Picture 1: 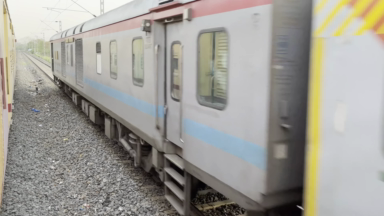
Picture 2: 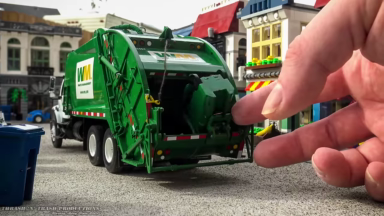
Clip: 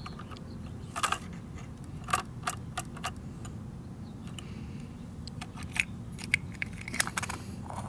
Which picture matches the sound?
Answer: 2